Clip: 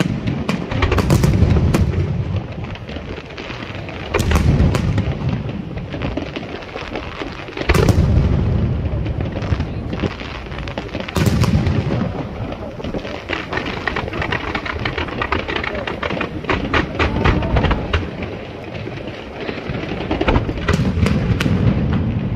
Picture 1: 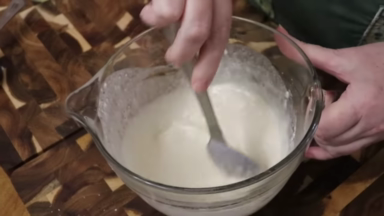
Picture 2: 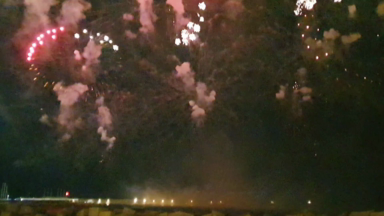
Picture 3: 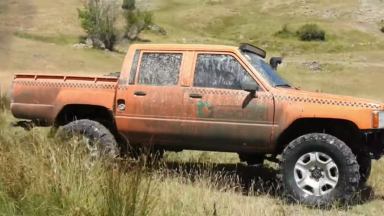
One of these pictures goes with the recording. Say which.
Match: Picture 2